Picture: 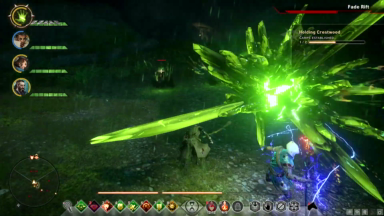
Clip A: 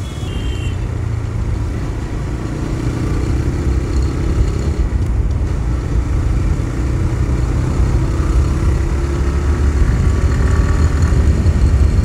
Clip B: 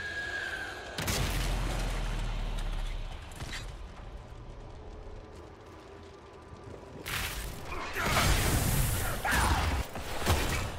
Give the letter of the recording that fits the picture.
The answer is B